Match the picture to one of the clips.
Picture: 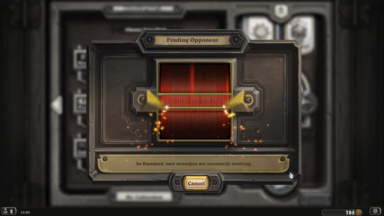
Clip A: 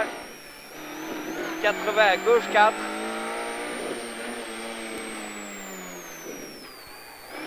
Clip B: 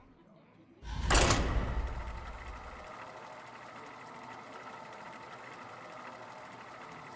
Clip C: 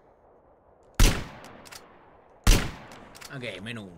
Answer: B